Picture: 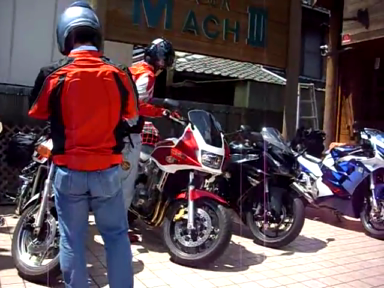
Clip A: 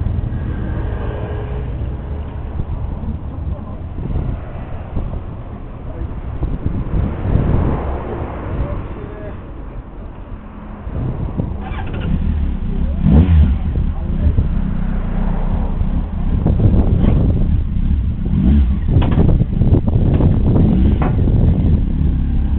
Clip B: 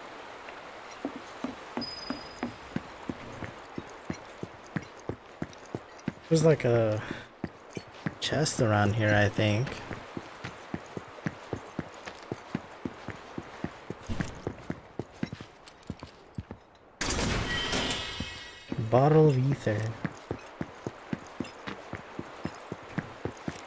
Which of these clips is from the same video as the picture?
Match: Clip A